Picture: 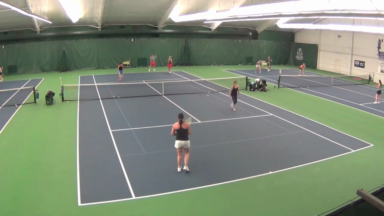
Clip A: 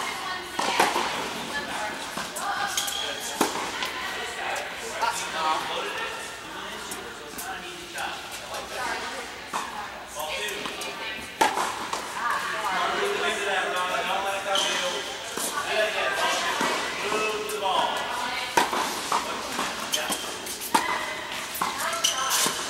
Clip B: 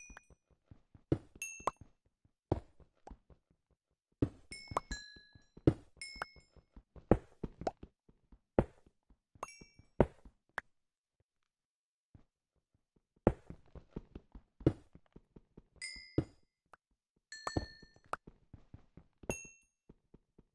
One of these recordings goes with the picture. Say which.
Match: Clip A